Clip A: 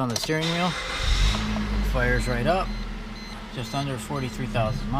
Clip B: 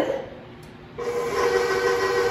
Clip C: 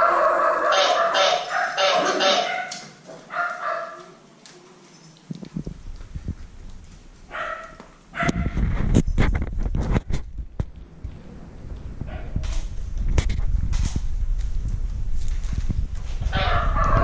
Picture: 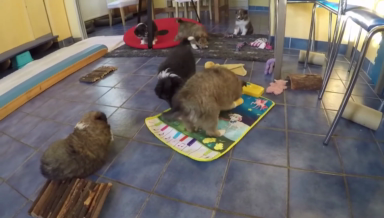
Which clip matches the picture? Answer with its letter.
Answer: C